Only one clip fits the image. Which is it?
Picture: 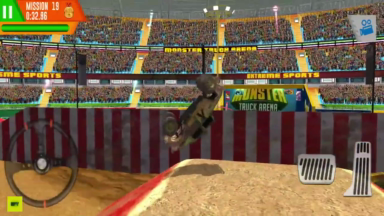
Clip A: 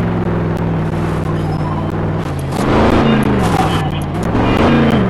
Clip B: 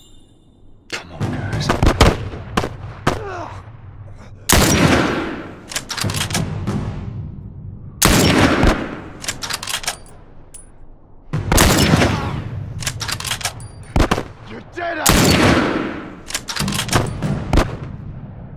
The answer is A